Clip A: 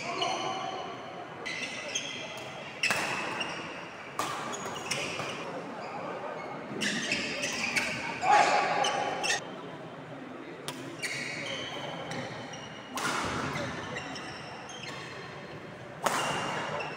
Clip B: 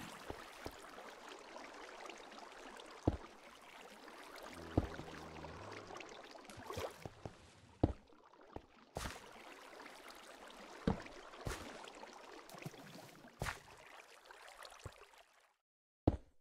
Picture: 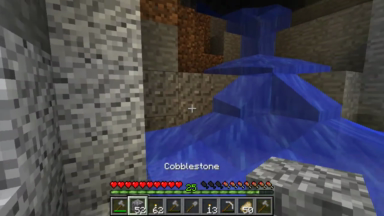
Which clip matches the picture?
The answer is B